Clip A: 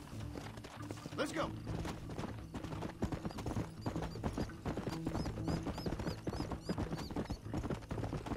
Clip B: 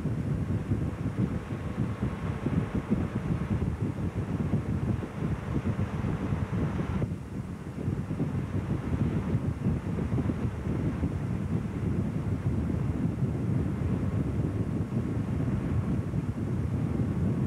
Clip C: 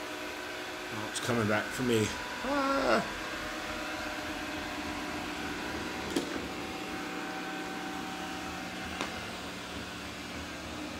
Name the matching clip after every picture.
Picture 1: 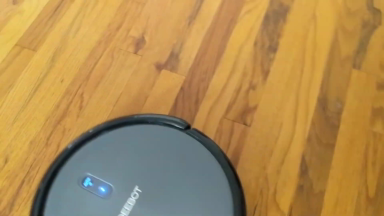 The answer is C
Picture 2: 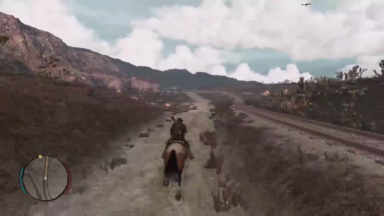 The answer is A